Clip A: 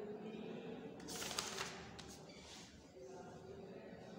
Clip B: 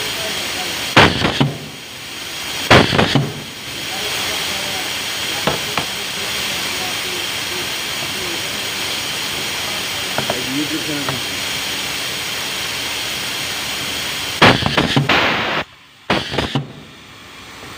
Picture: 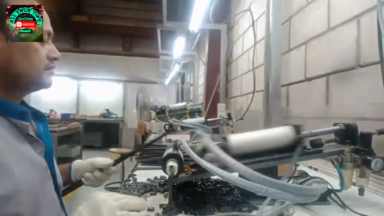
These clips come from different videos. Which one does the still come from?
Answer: B